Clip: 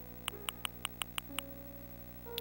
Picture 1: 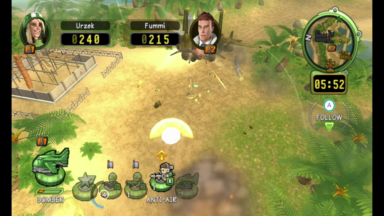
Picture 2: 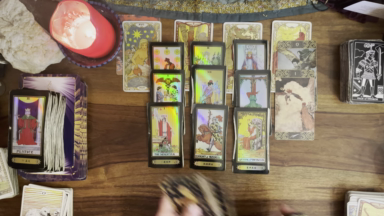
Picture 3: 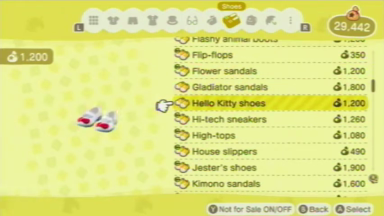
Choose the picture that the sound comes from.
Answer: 3